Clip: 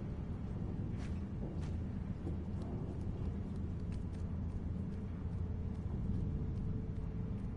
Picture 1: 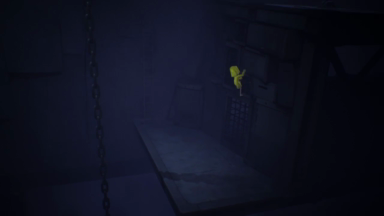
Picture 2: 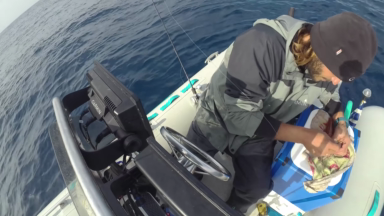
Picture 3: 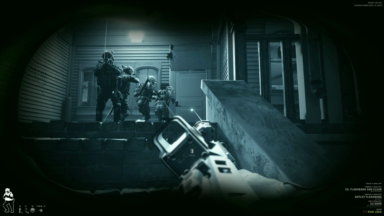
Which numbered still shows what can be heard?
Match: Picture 1